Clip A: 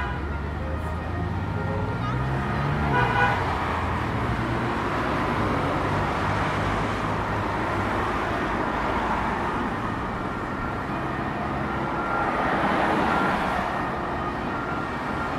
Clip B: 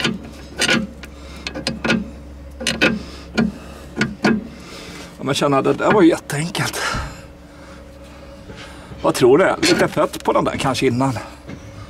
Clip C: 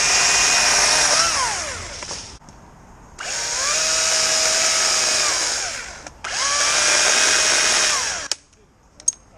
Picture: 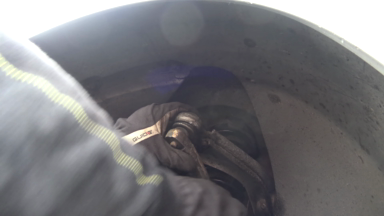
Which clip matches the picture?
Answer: B